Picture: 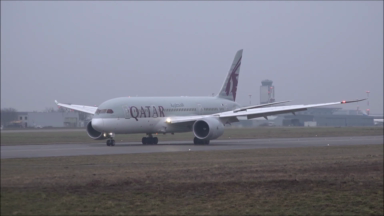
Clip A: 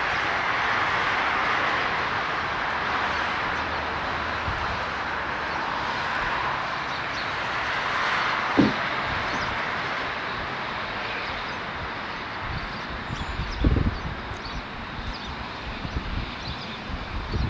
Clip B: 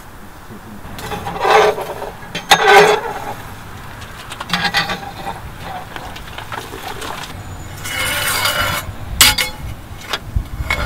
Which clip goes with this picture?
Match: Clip A